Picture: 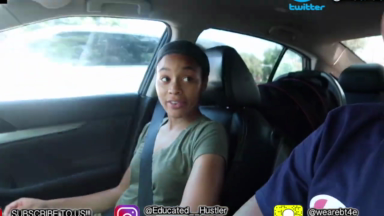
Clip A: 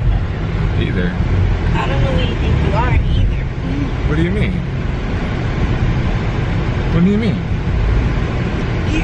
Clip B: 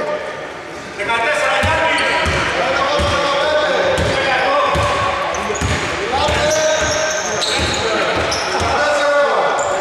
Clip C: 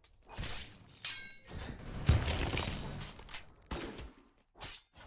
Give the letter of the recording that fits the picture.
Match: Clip A